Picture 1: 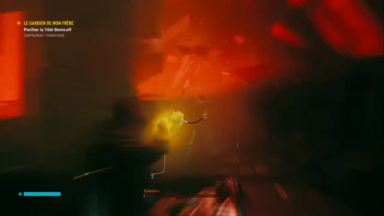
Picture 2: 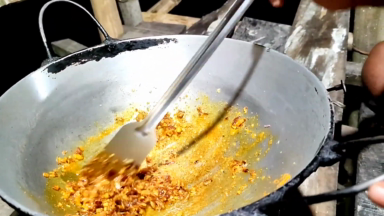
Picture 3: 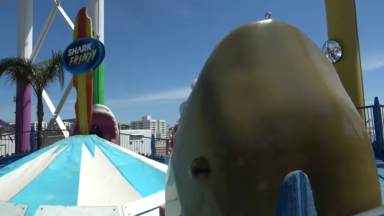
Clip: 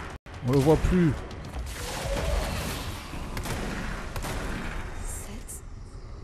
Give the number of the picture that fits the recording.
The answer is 1